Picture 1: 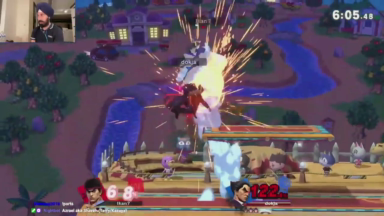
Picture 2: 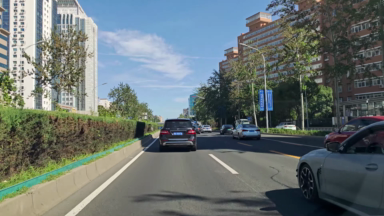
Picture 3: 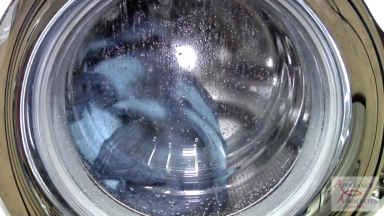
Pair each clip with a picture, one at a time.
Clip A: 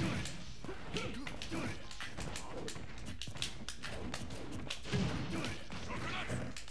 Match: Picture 1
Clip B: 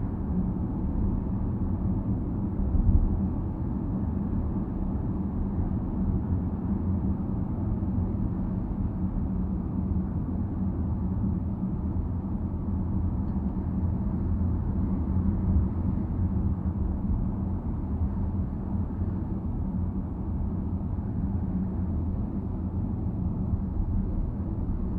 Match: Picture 2